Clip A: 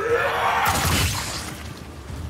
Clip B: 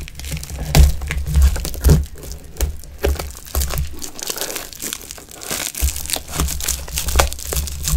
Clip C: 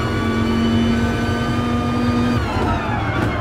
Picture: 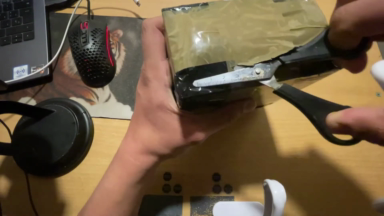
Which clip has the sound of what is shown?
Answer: B